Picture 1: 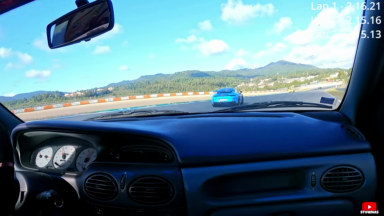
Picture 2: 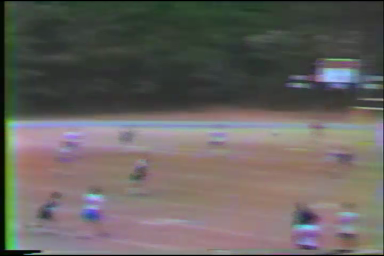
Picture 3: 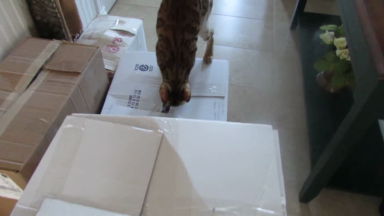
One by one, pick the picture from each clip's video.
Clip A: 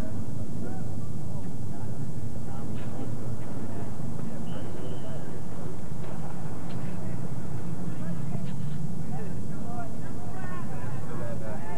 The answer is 2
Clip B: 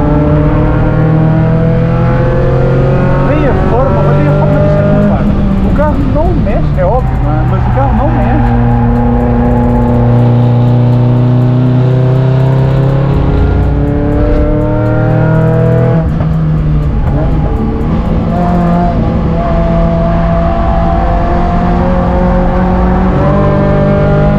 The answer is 1